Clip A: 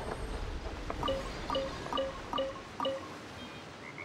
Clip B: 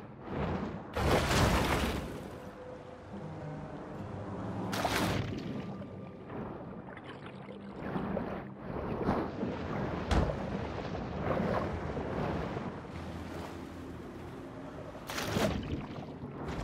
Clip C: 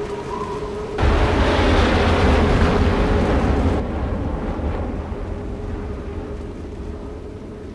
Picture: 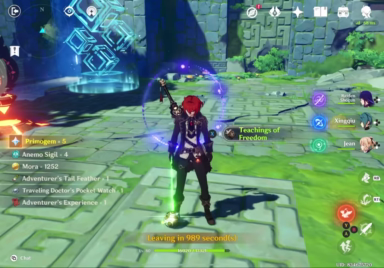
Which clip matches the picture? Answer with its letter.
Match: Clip A